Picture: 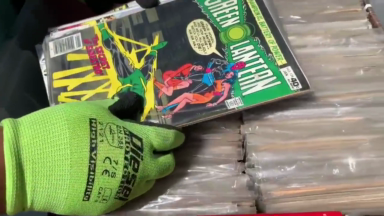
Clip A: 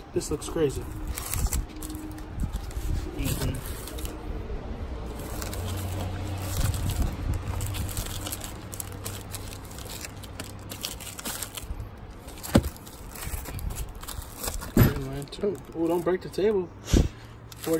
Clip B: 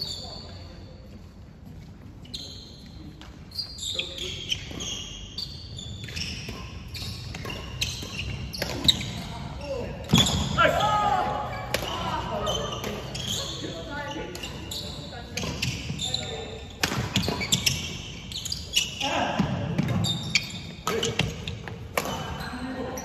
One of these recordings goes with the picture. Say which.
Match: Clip A